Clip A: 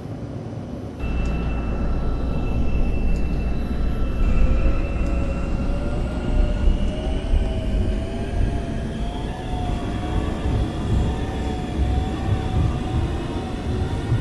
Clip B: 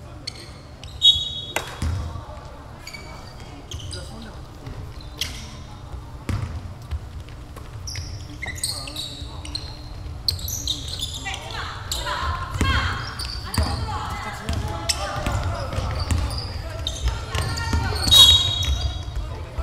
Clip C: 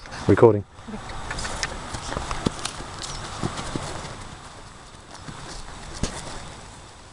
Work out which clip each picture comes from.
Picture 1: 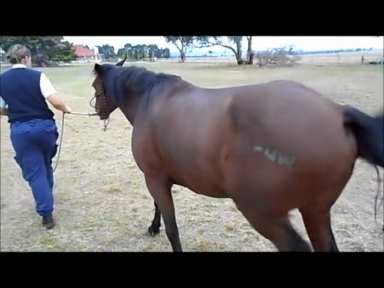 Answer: C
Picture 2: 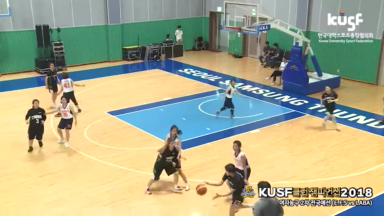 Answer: B